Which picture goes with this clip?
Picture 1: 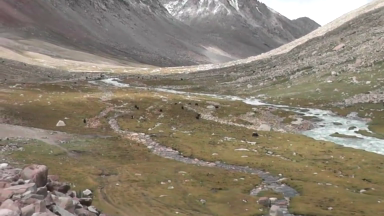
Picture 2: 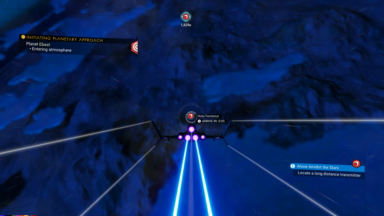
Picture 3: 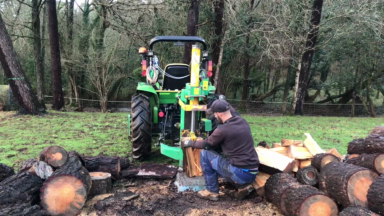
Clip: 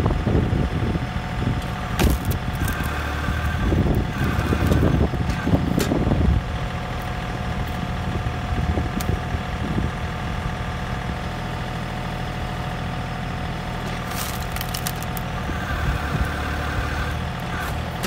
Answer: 3